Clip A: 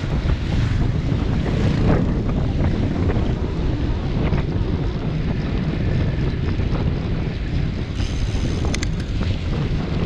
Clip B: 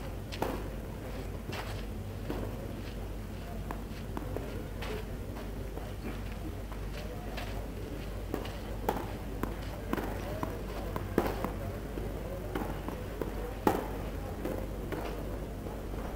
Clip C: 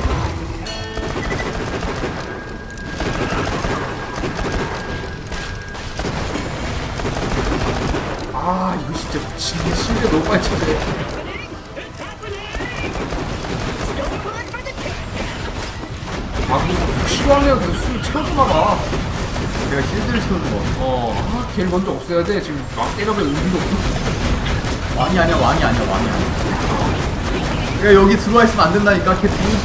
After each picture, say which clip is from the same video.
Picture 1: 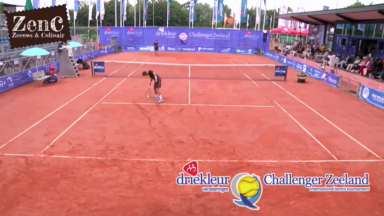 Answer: B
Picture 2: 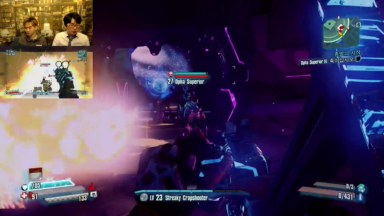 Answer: C